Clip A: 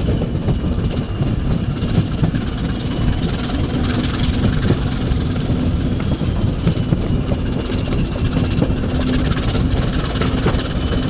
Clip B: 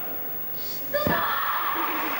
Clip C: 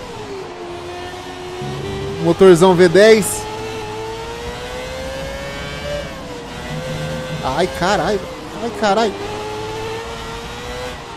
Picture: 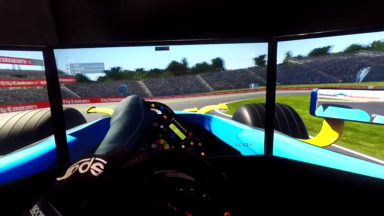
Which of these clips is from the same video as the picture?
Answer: C